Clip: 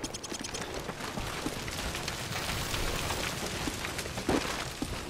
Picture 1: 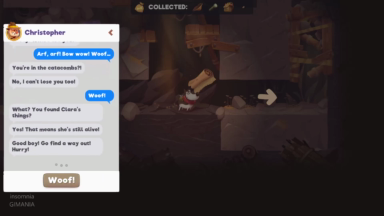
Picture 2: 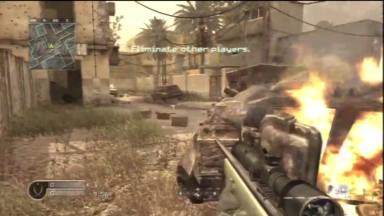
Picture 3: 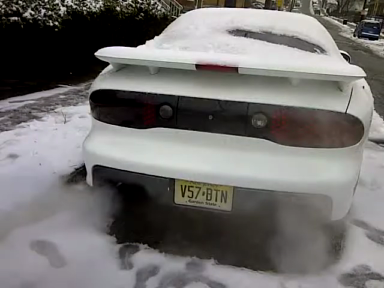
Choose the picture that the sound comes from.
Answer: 2